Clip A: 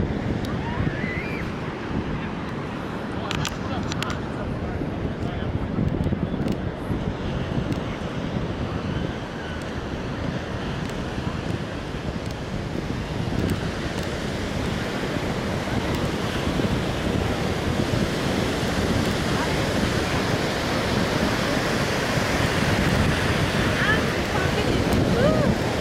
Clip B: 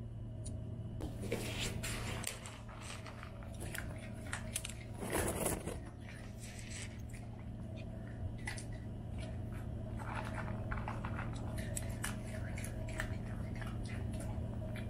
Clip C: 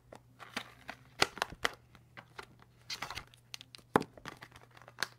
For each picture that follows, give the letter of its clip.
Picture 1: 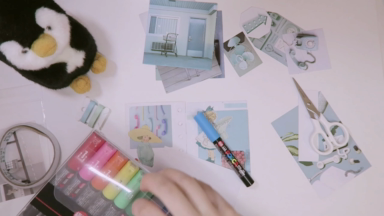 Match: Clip C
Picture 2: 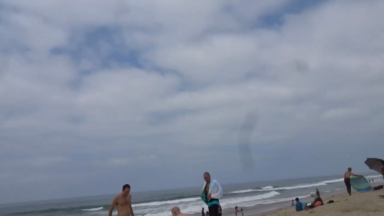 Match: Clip A